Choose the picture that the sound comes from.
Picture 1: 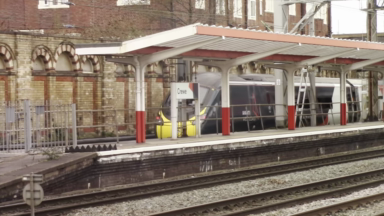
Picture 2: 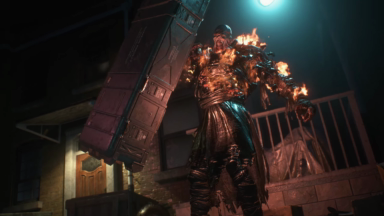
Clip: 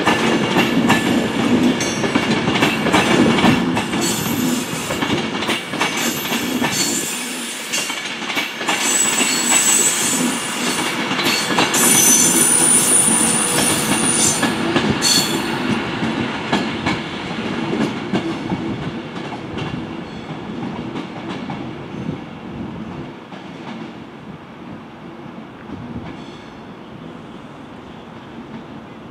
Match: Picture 1